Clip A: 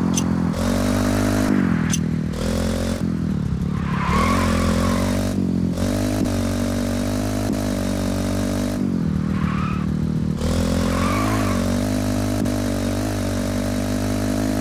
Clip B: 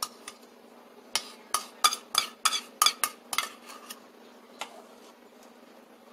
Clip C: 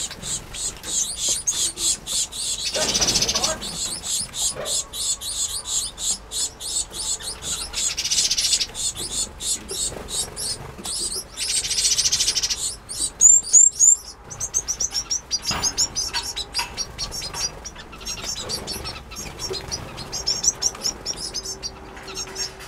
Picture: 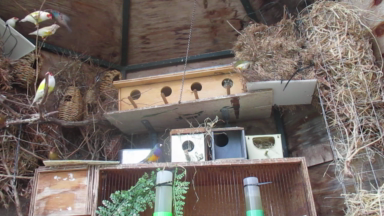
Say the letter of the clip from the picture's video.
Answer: C